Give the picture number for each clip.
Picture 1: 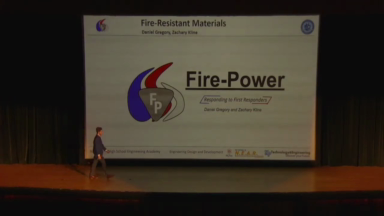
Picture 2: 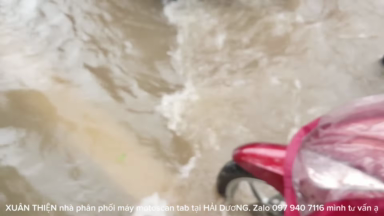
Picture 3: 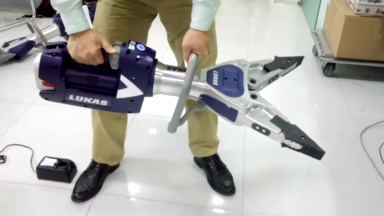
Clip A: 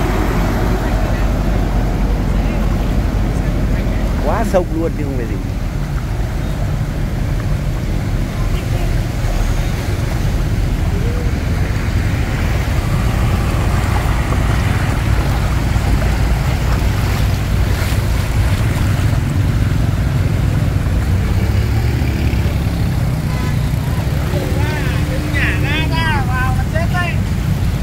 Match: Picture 2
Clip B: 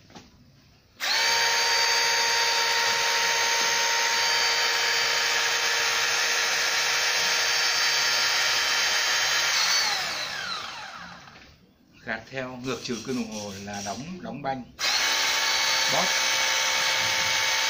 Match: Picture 3